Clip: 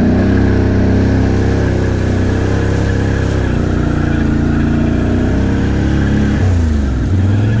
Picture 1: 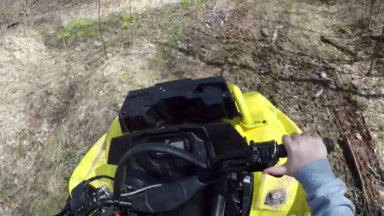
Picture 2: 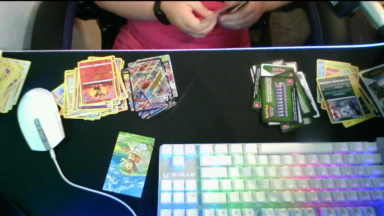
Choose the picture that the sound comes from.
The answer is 1